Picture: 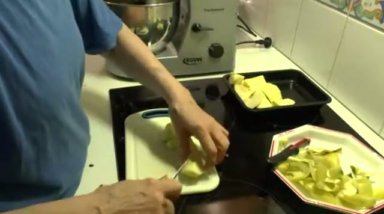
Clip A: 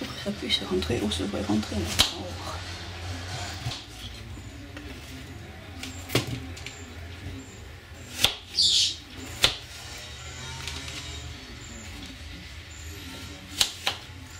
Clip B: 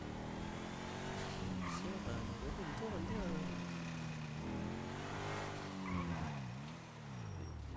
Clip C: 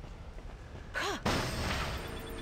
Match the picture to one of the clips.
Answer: A